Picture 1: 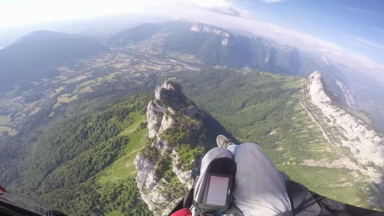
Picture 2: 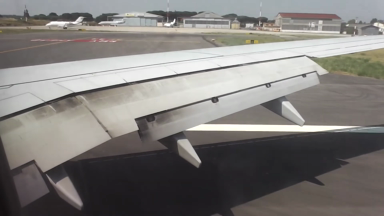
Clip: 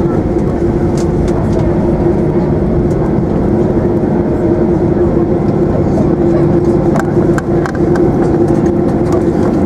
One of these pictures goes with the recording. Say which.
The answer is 2